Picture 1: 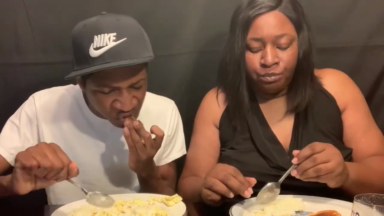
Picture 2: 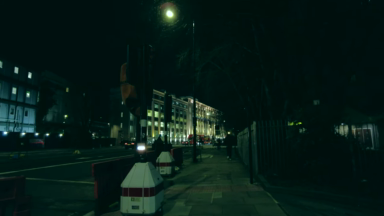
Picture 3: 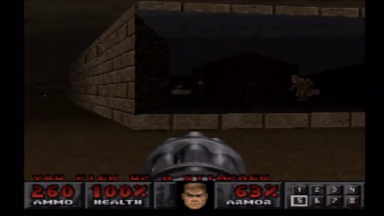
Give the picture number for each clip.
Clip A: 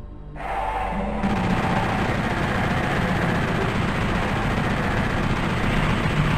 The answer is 3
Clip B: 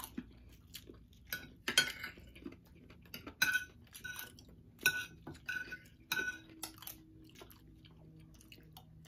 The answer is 1